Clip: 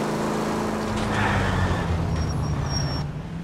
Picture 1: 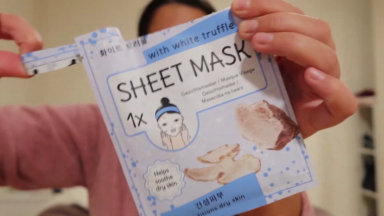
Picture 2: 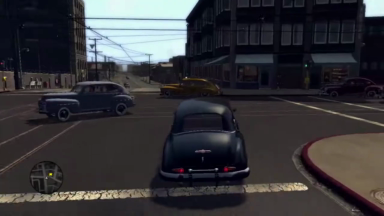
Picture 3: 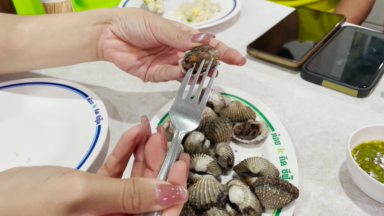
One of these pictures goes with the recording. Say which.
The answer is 2